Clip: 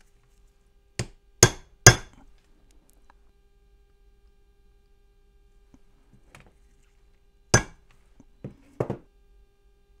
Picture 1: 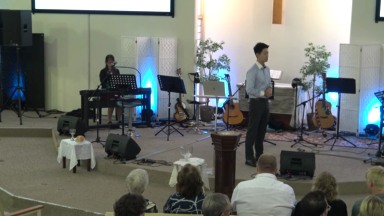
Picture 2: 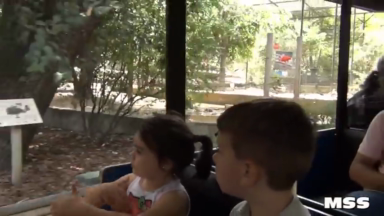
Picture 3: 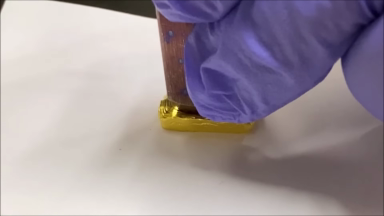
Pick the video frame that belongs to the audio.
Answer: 3